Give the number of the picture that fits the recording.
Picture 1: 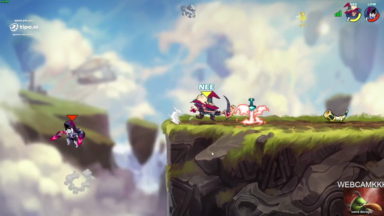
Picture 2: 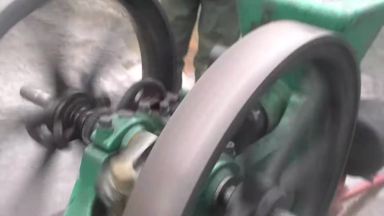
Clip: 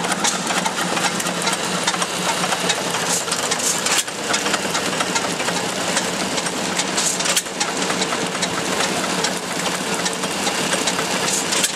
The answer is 2